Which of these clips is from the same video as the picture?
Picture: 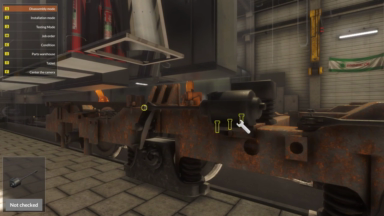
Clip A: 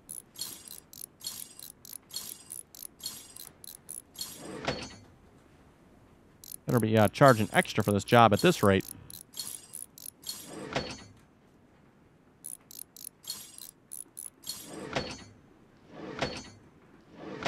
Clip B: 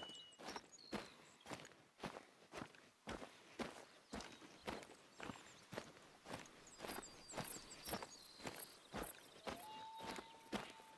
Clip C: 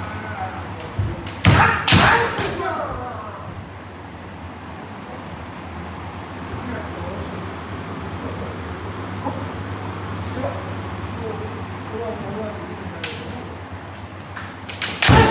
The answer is A